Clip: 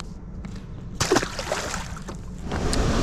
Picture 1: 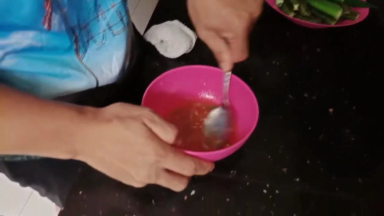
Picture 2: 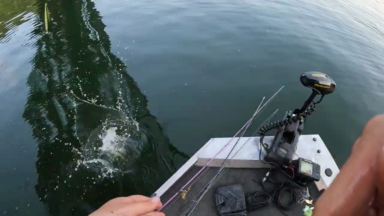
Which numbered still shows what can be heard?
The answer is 2